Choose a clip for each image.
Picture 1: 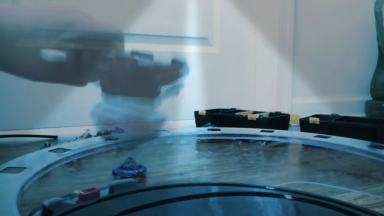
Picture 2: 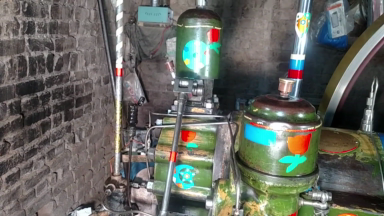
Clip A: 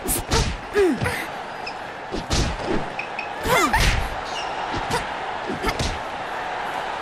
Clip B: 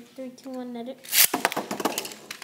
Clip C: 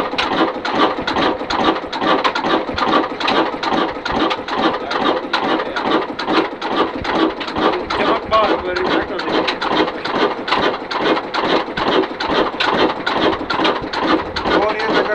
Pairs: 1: B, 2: C